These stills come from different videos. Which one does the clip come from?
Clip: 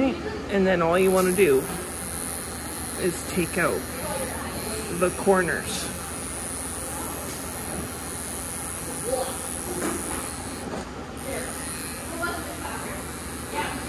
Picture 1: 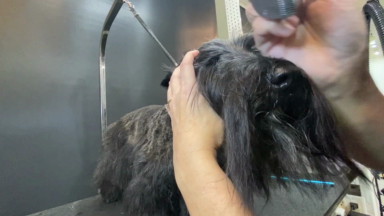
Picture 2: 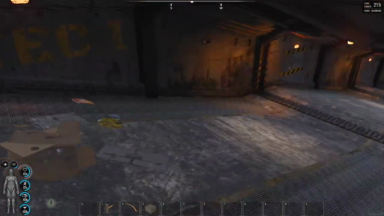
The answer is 1